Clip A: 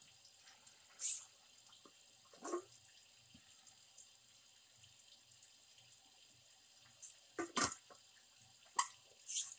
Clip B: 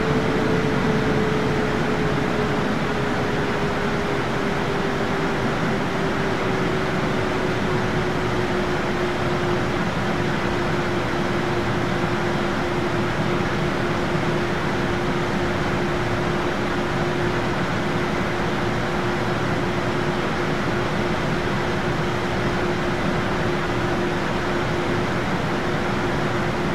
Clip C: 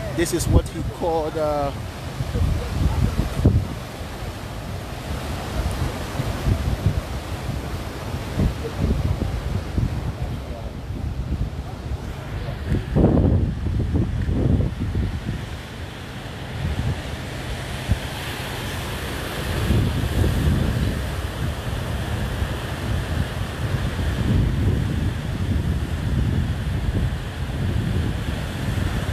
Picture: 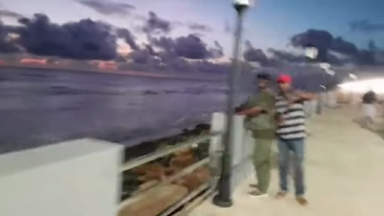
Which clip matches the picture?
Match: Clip C